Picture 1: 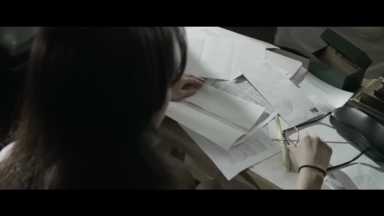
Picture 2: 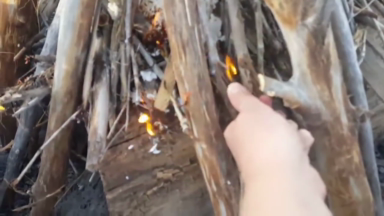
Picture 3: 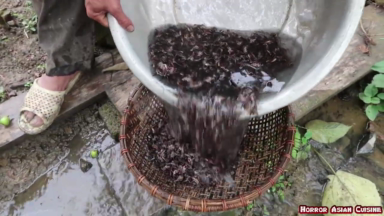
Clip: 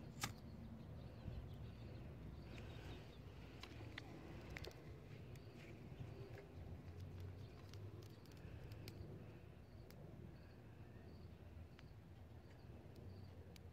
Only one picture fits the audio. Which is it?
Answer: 2